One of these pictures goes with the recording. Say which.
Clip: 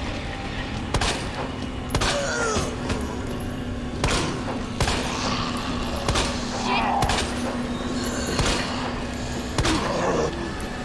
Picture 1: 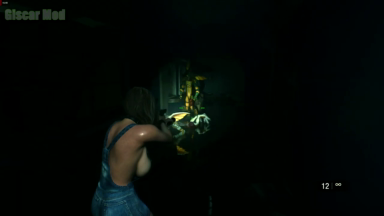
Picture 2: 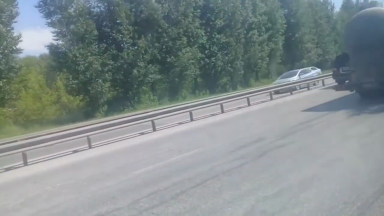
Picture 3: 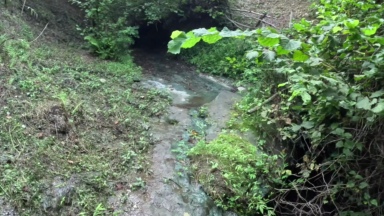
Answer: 1